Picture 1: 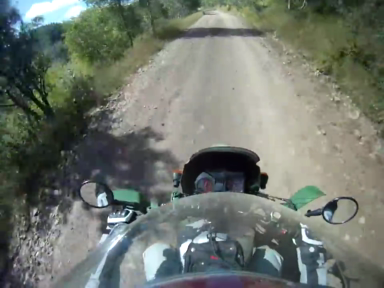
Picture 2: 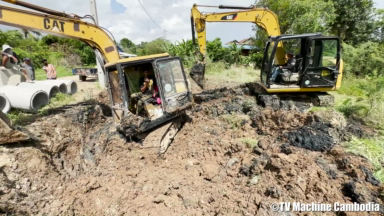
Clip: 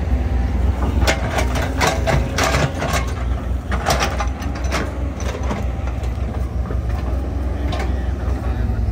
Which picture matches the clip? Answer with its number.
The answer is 2